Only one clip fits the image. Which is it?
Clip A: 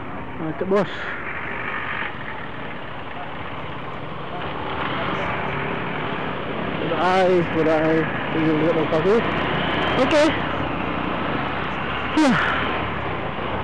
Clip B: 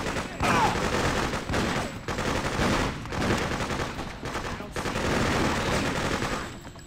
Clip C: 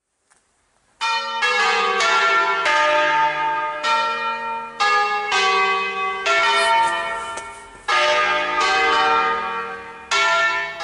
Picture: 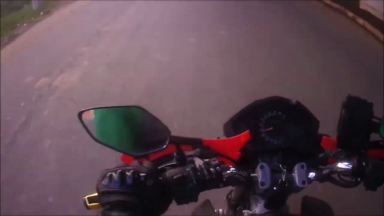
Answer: A